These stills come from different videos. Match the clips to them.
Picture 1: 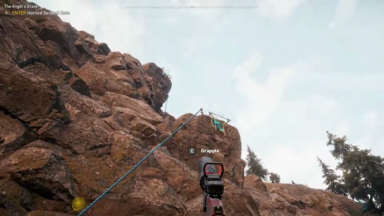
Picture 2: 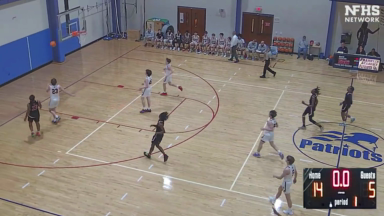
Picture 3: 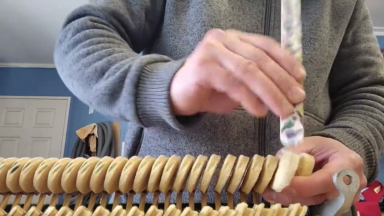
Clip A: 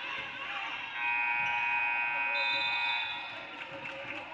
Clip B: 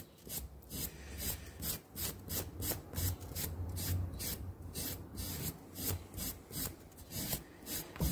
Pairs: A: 2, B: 3